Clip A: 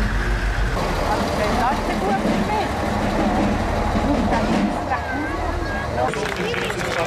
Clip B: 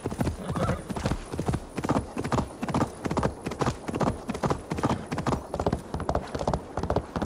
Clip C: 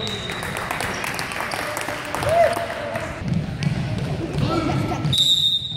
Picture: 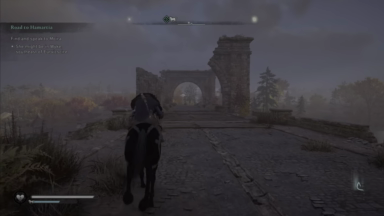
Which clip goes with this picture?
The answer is B